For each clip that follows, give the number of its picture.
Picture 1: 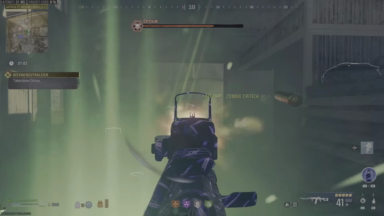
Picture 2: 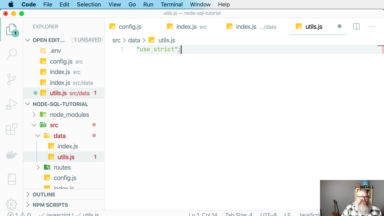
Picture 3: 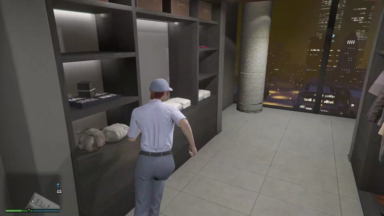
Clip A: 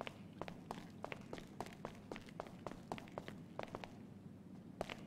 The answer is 3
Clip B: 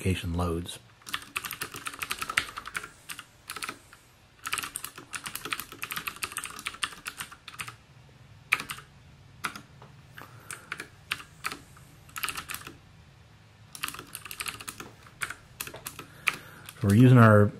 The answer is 2